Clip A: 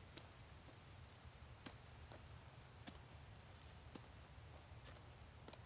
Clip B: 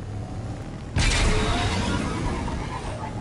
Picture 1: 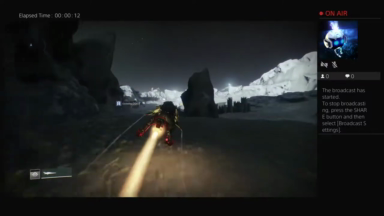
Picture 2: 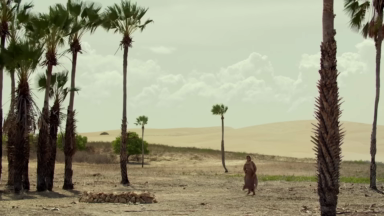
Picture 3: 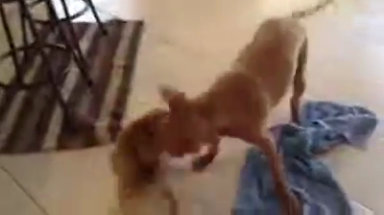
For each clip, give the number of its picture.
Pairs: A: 2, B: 1